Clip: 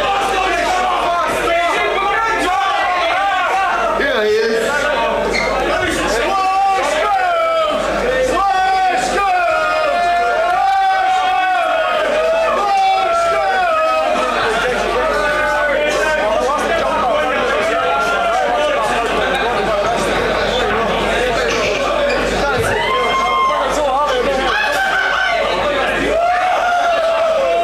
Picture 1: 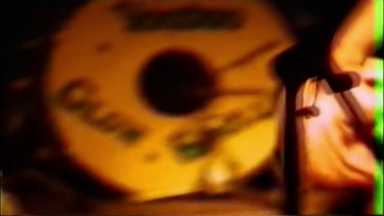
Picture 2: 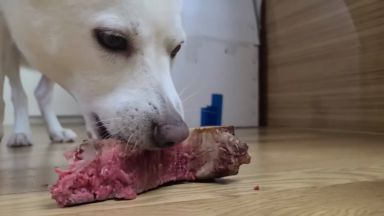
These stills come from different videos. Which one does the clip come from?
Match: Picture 1